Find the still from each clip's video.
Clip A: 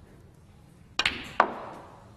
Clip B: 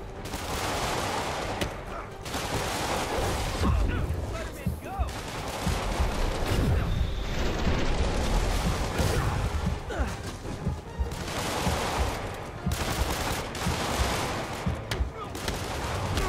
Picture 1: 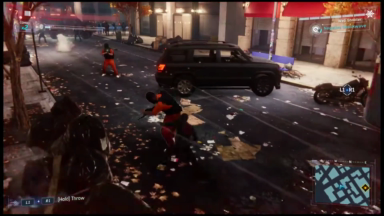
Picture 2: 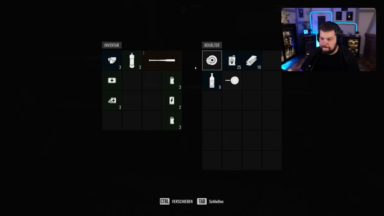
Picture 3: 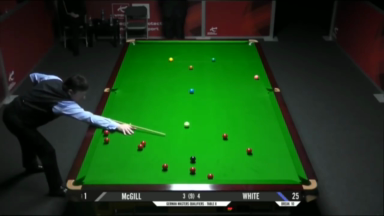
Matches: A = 3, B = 1